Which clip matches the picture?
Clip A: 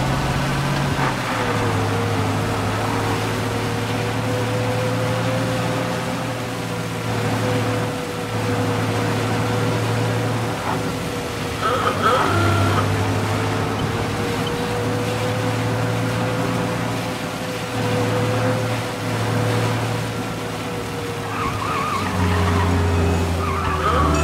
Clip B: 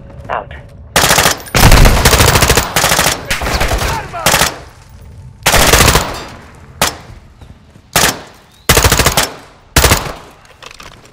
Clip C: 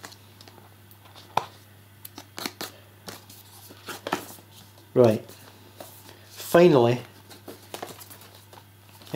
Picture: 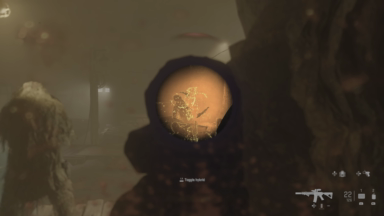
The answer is B